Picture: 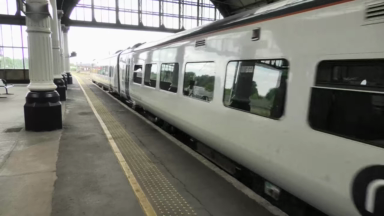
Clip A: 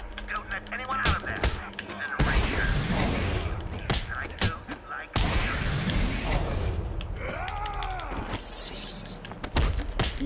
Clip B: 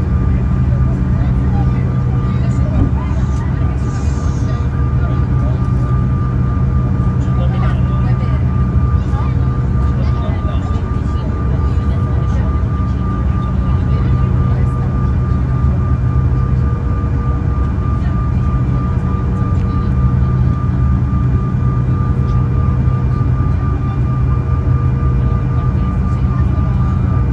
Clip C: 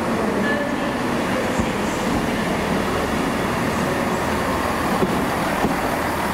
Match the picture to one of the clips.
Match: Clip C